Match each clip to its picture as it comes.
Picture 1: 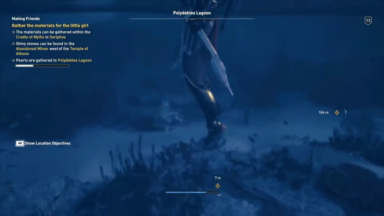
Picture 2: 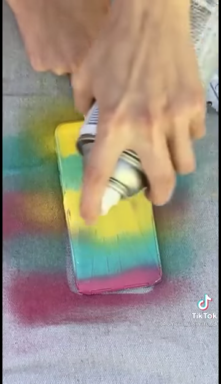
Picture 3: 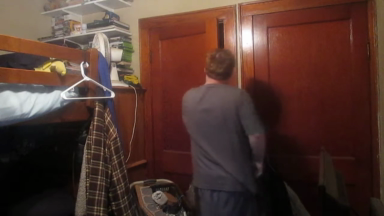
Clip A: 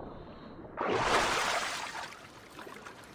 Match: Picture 1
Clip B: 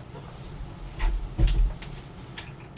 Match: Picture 3